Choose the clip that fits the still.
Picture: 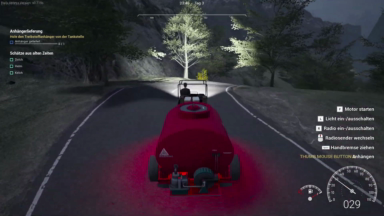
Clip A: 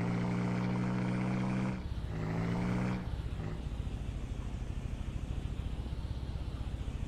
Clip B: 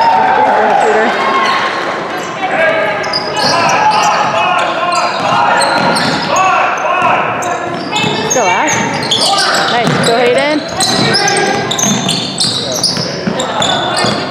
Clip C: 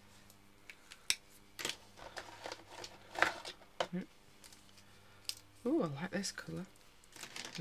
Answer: A